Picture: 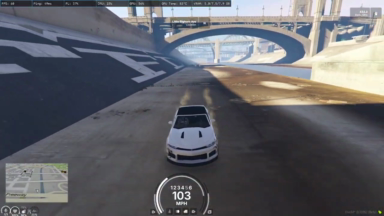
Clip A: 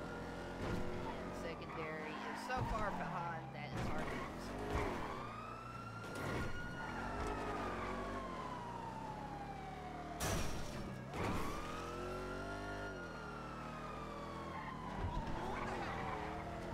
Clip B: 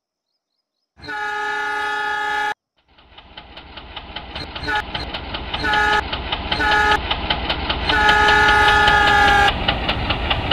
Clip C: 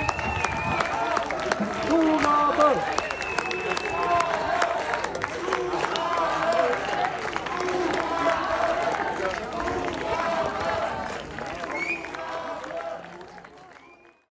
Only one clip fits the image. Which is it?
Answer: A